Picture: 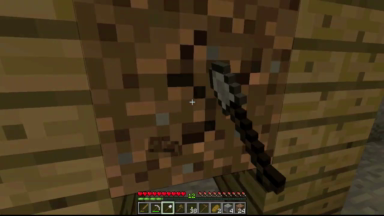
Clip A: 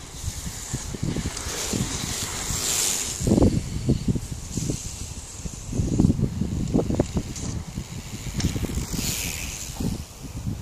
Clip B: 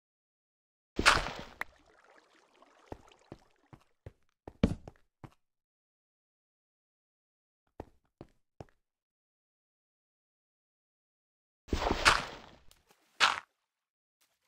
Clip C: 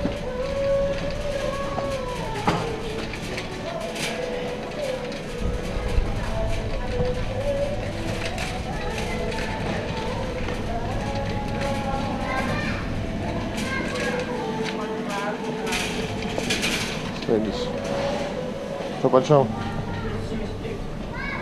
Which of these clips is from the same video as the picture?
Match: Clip B